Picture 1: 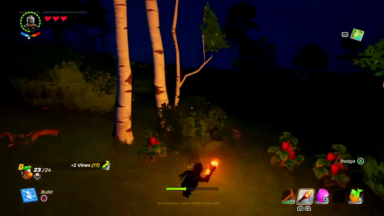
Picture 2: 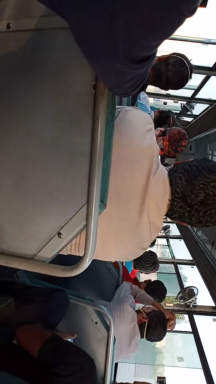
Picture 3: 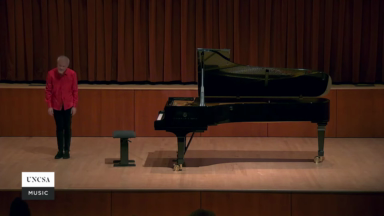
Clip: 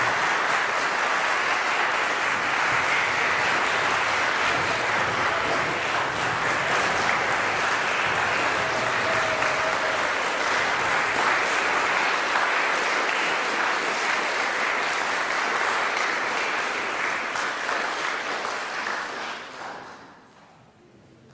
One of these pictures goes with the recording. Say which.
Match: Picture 3